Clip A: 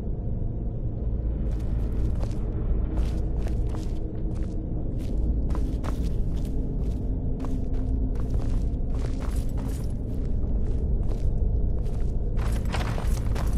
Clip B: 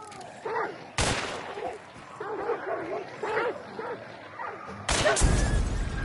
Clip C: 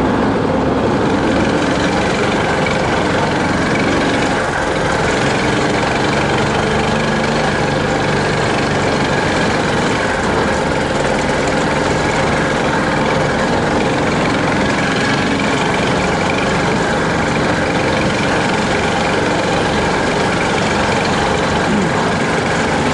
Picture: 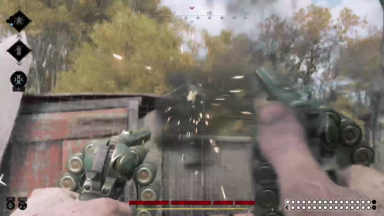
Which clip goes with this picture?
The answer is B